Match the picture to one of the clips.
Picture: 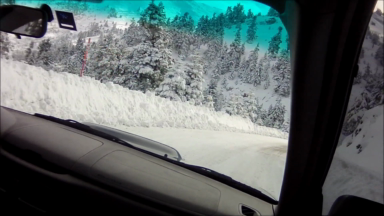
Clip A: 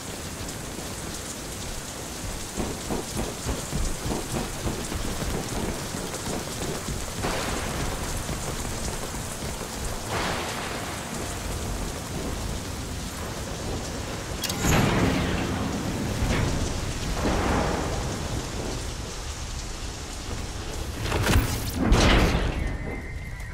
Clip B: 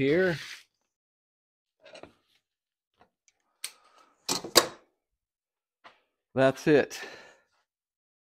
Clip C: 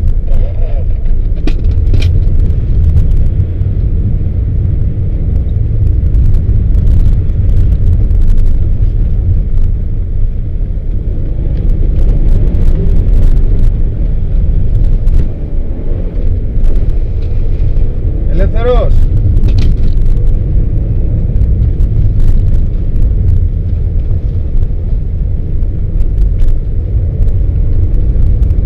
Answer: C